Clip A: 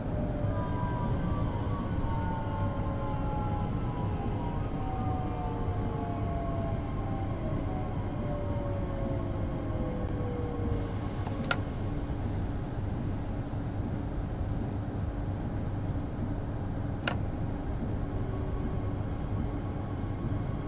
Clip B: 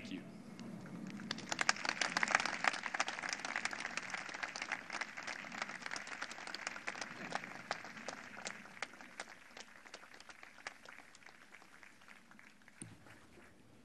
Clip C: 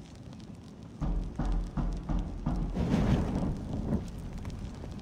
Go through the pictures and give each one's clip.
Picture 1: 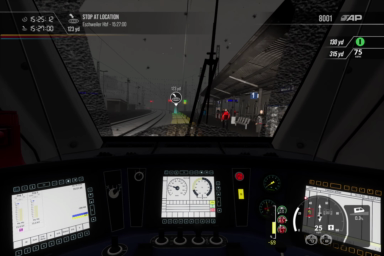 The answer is A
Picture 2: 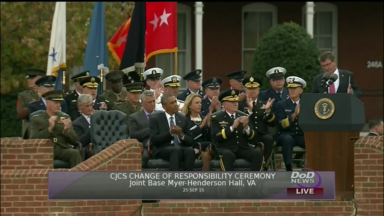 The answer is B